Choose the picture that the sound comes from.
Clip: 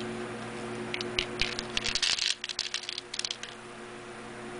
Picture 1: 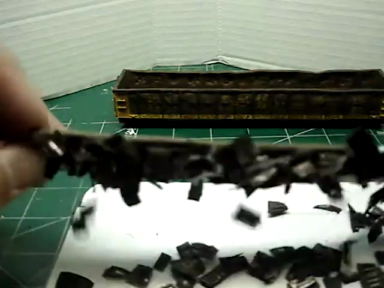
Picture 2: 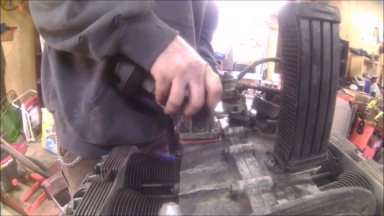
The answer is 1